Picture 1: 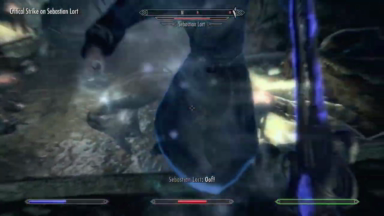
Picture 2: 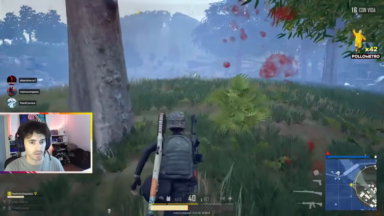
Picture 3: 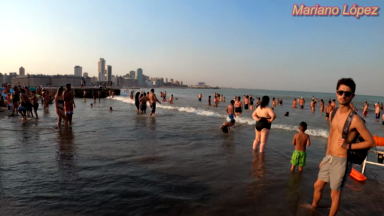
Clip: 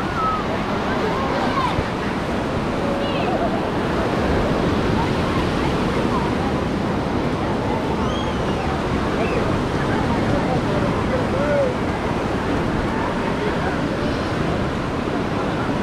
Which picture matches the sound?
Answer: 3